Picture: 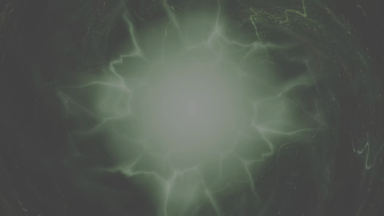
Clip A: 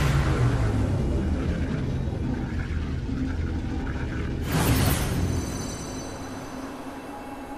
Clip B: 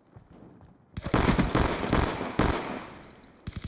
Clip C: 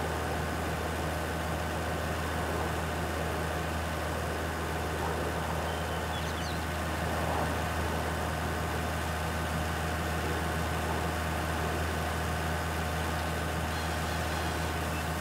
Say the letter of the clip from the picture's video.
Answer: A